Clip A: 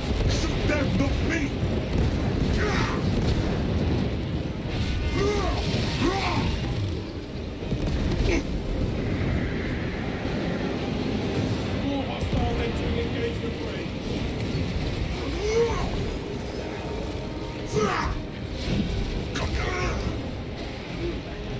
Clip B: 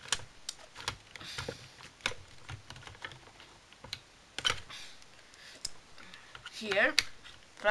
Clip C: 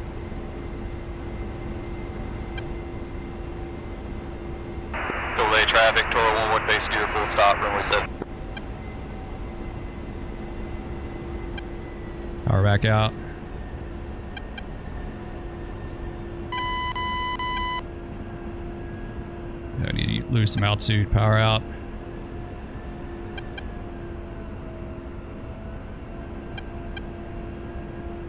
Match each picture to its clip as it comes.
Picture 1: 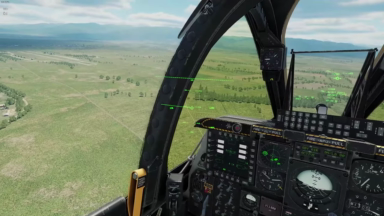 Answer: C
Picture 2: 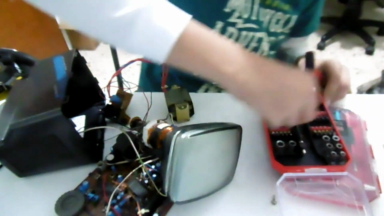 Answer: B